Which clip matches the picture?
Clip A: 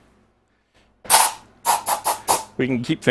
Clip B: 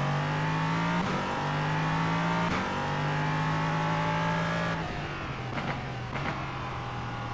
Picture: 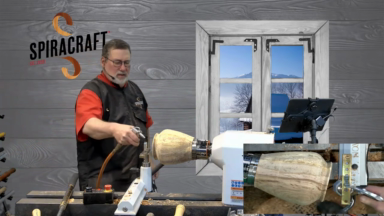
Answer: A